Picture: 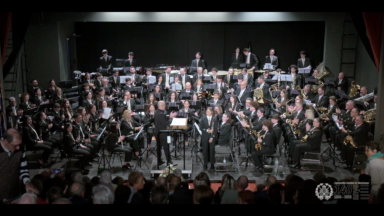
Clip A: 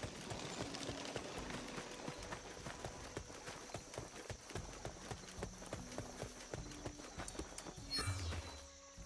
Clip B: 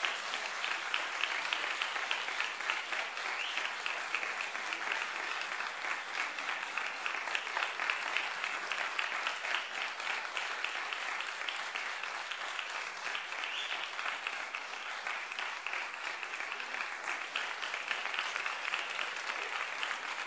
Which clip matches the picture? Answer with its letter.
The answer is B